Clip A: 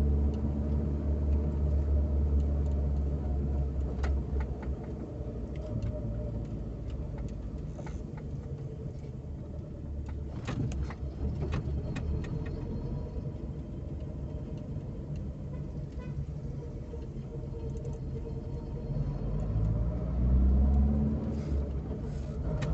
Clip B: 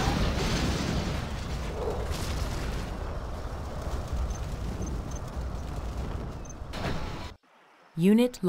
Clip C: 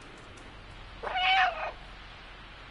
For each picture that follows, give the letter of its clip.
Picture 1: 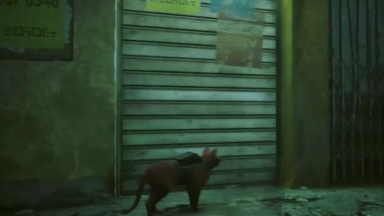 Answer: C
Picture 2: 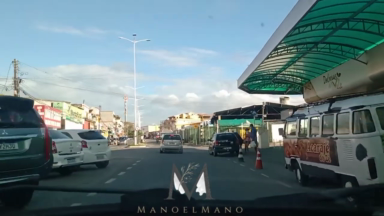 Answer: A